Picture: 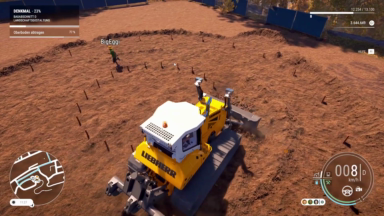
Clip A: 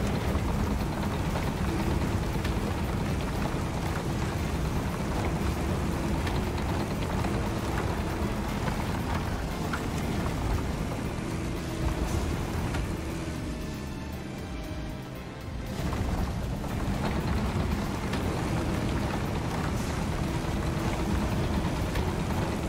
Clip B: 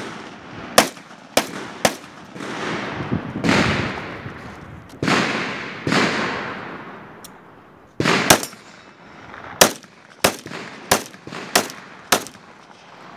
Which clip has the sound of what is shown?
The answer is A